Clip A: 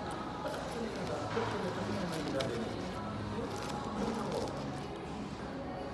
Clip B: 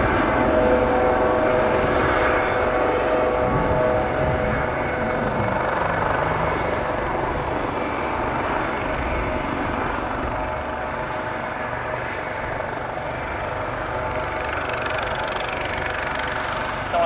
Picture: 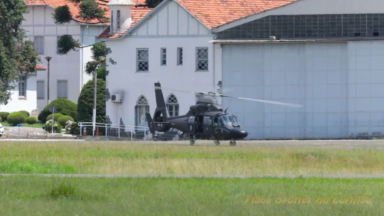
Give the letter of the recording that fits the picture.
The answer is B